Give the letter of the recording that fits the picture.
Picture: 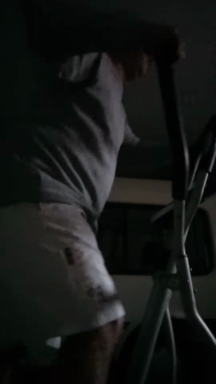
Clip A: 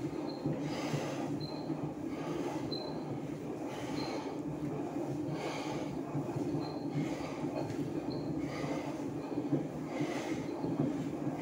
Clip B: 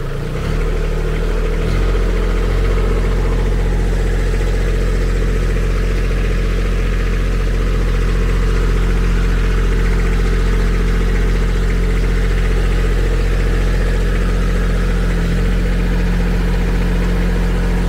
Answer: A